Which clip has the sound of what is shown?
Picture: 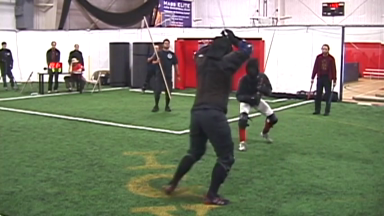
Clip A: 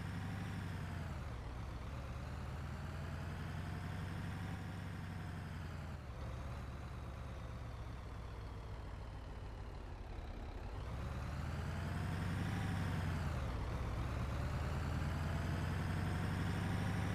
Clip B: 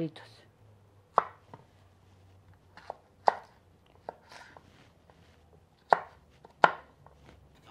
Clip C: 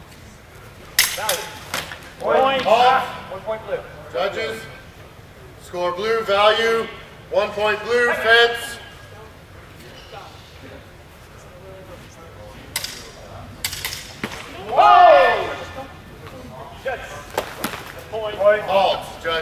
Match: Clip C